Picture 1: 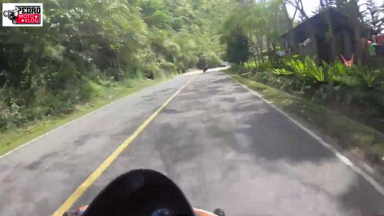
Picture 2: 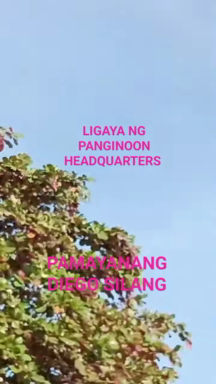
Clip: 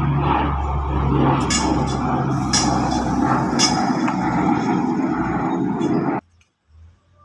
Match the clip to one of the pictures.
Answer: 2